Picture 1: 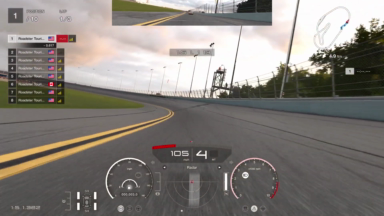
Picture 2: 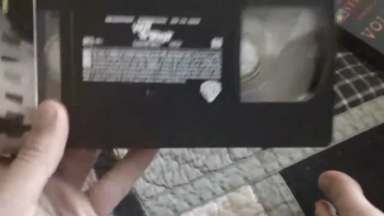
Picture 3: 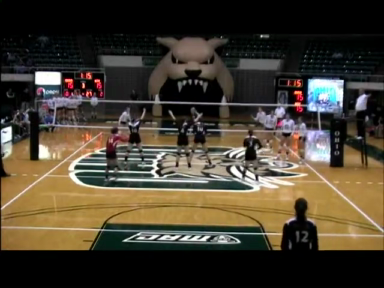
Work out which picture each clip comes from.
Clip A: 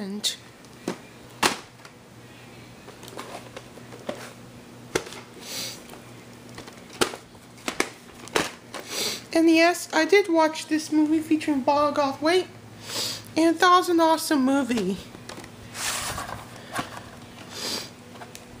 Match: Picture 2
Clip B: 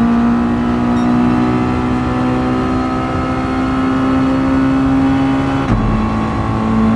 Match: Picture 1